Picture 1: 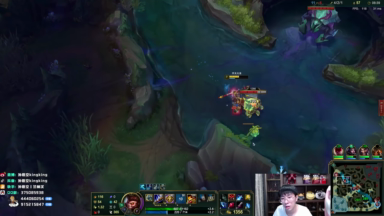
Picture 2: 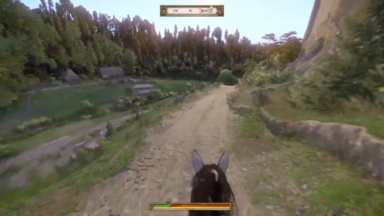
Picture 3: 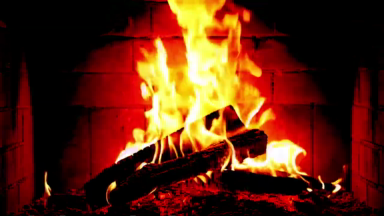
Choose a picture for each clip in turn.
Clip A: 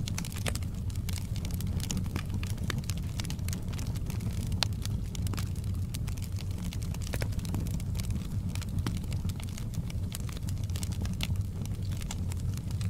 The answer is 3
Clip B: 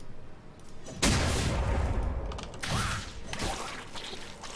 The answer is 1